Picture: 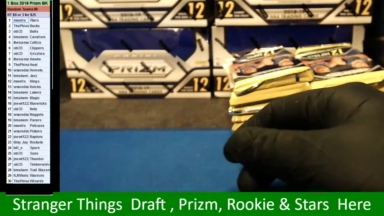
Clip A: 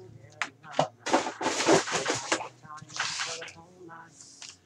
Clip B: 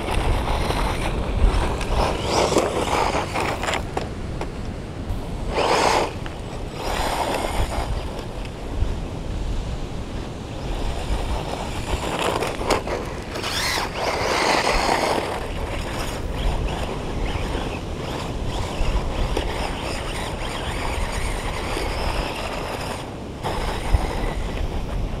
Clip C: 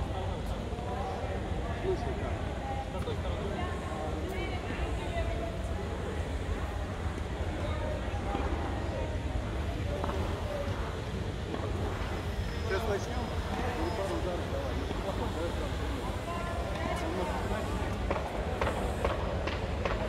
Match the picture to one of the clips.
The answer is A